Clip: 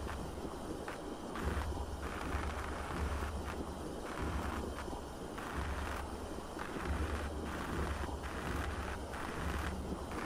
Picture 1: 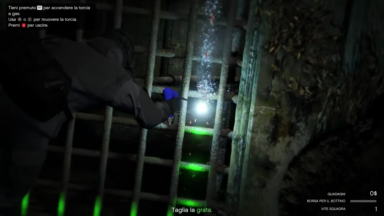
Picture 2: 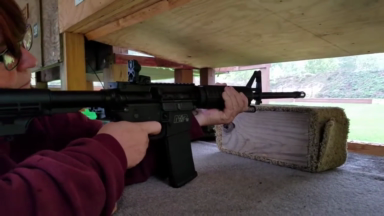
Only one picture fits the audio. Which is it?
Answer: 1